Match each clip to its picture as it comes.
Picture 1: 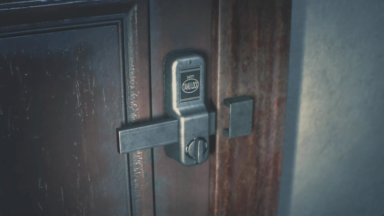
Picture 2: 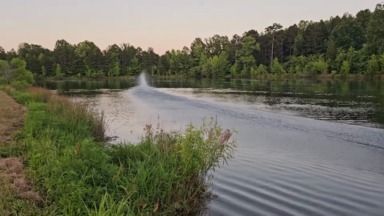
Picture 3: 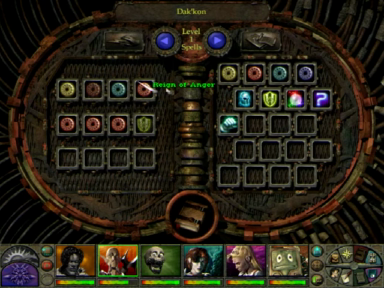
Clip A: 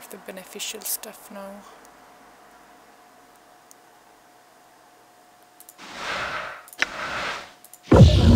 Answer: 3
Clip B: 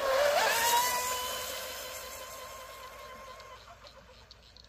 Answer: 2